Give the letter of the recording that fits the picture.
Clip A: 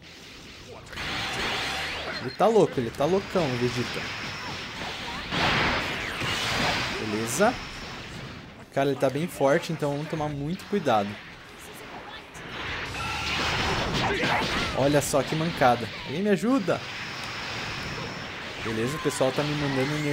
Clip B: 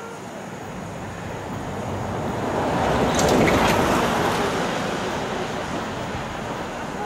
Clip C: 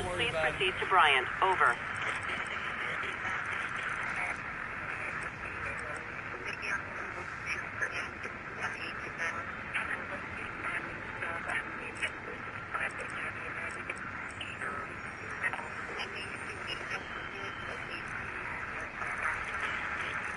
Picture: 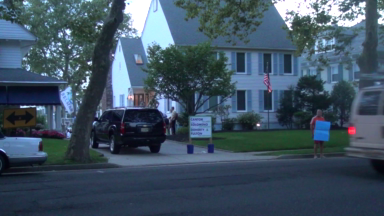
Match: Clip B